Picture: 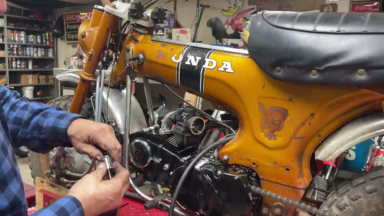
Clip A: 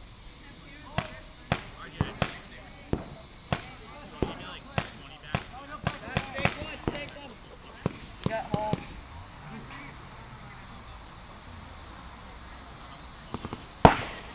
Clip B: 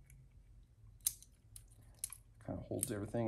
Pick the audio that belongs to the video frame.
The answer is B